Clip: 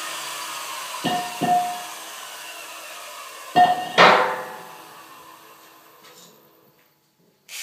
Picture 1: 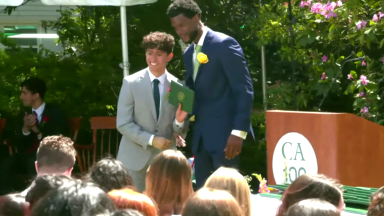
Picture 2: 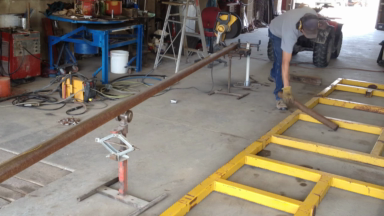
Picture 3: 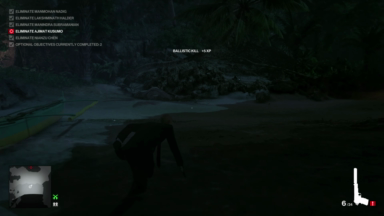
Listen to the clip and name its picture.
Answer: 2